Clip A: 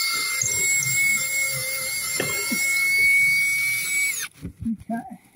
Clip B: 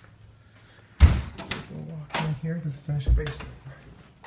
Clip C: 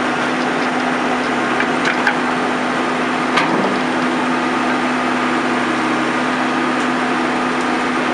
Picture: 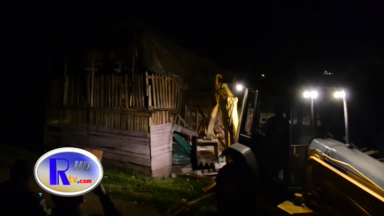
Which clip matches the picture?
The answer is C